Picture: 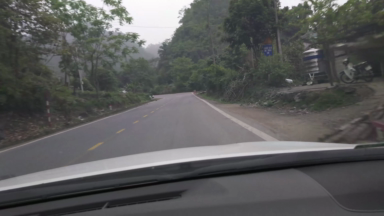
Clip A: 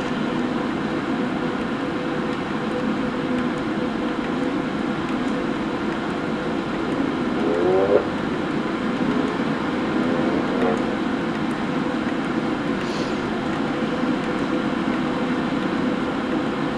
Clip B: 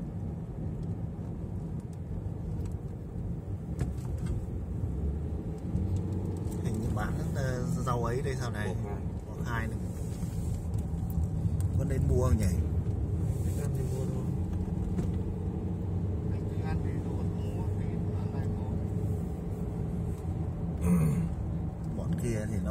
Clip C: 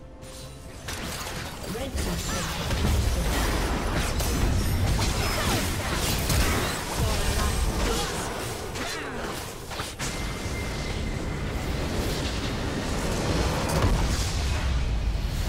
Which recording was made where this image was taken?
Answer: B